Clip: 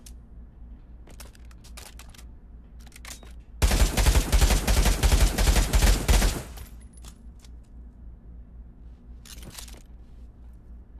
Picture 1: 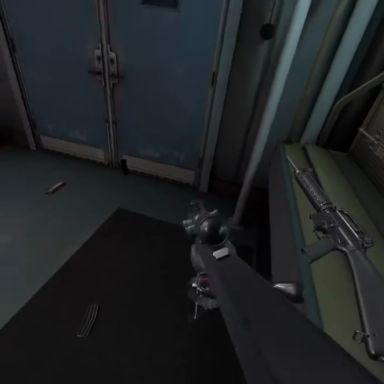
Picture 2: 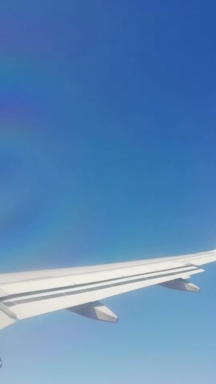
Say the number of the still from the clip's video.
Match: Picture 1